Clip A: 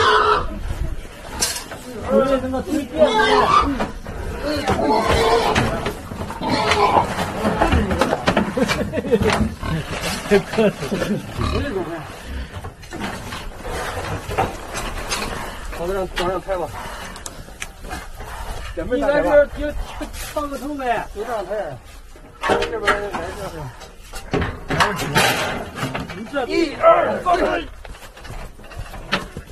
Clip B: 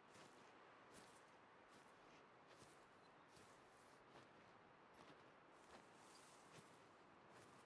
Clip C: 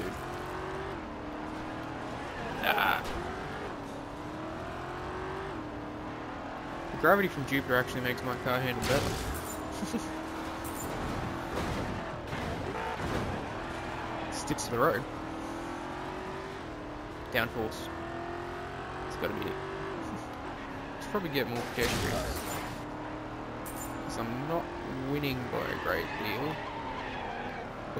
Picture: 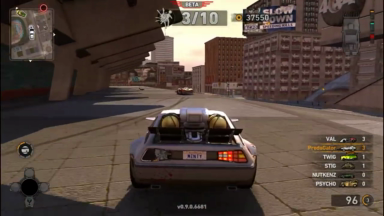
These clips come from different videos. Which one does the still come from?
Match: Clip C